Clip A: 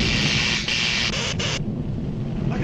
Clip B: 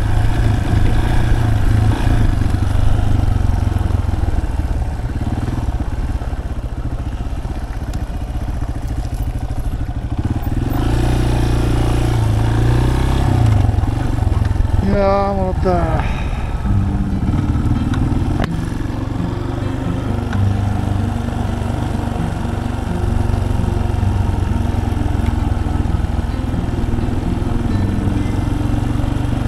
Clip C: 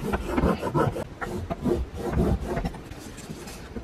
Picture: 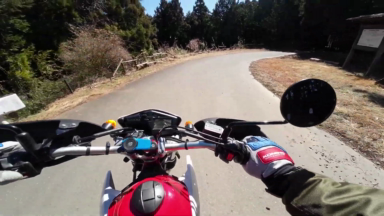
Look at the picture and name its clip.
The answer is B